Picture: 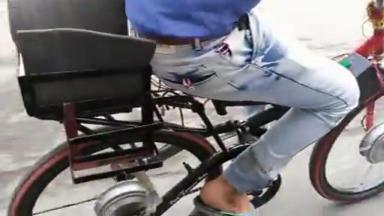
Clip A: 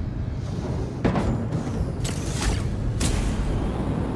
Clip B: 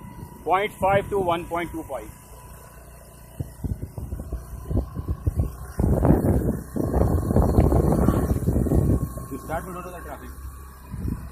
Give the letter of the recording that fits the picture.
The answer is B